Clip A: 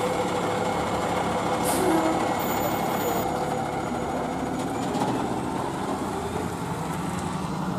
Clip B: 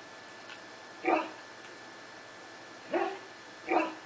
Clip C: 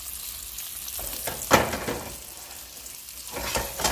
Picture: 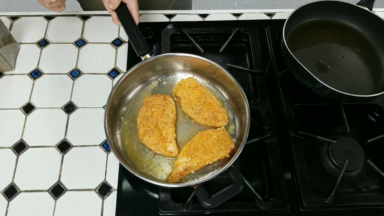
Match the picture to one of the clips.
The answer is C